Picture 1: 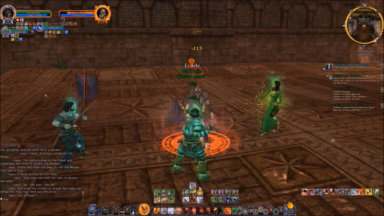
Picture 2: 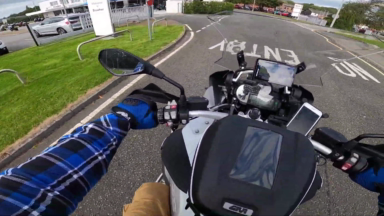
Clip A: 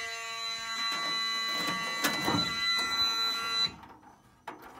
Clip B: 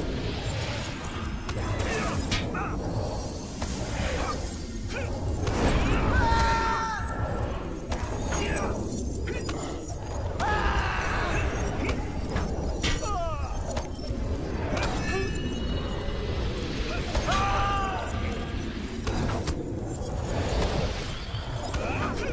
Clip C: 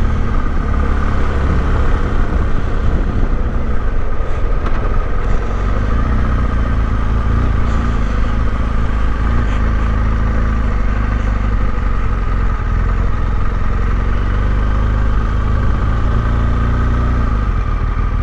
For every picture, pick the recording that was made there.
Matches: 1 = B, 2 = C